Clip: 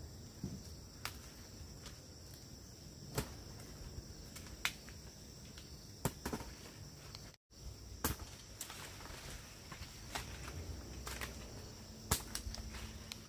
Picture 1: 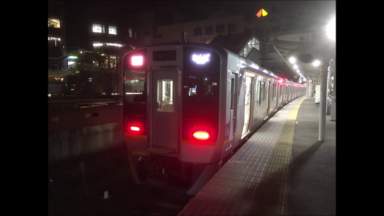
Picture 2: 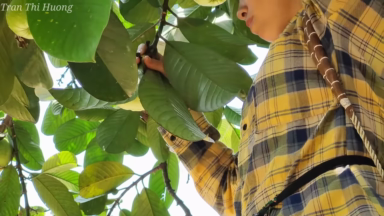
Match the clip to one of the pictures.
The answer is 2